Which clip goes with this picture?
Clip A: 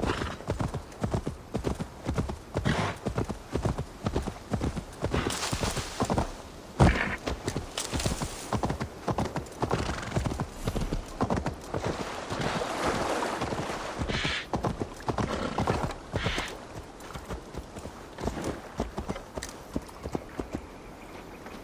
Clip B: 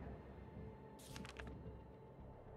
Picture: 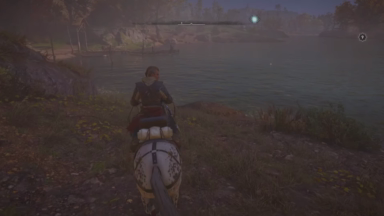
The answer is A